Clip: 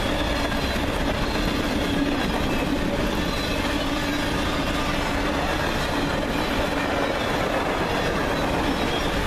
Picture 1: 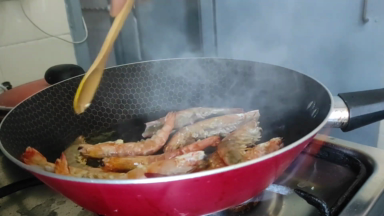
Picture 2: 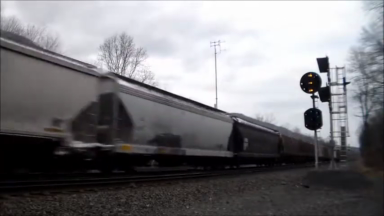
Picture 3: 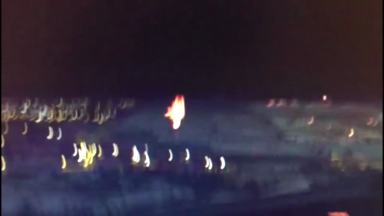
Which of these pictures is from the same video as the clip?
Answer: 2